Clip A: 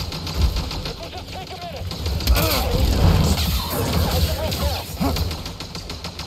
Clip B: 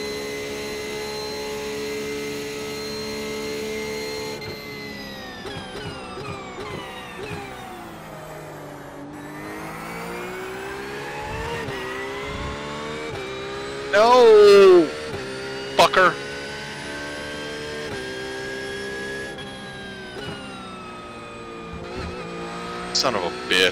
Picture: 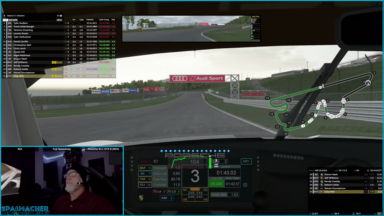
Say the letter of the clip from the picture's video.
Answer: B